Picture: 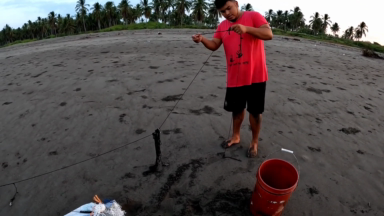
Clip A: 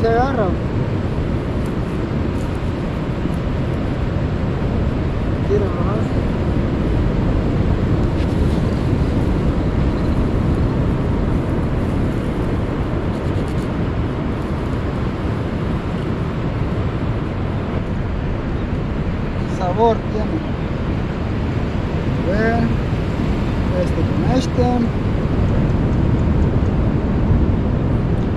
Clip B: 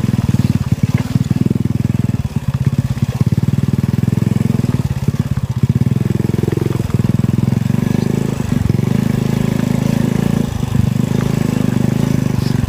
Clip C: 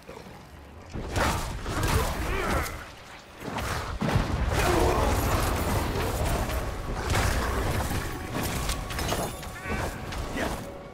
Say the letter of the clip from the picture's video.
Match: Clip A